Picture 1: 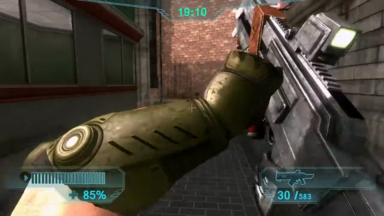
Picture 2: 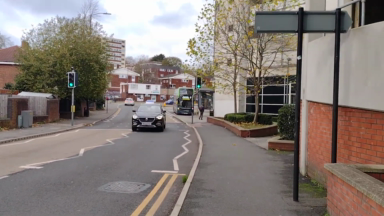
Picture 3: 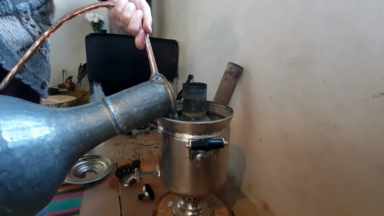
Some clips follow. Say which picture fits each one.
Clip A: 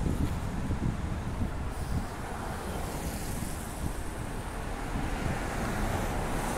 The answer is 2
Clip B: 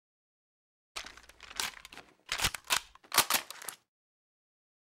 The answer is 1